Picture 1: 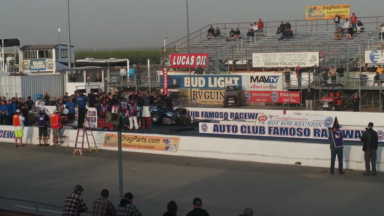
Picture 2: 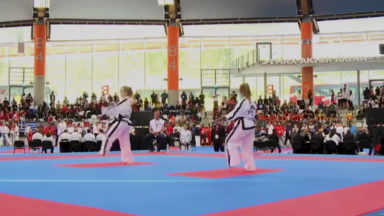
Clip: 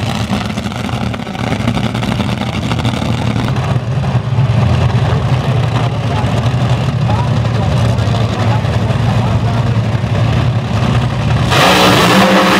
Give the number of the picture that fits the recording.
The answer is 1